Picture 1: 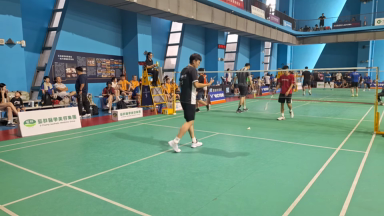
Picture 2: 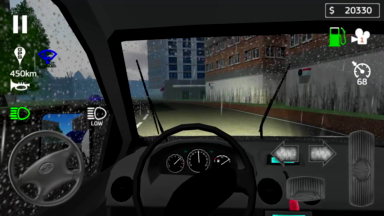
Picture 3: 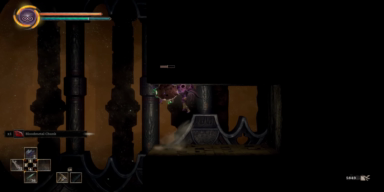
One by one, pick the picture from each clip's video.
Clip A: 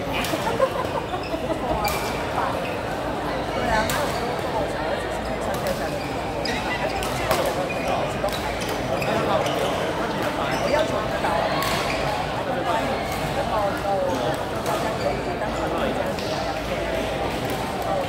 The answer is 1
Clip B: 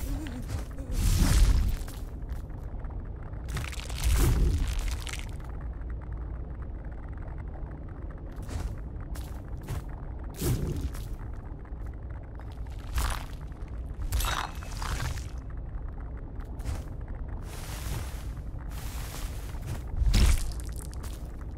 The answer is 3